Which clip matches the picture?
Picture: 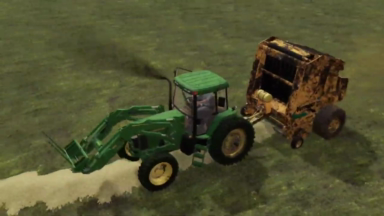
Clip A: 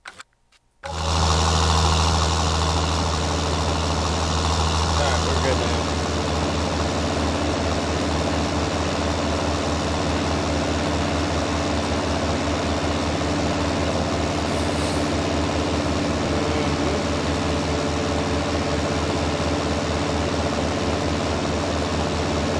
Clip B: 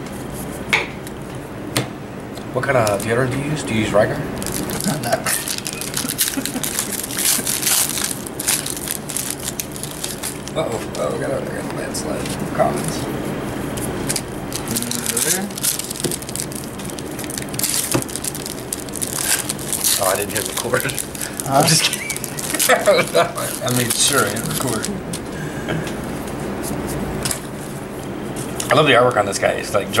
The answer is A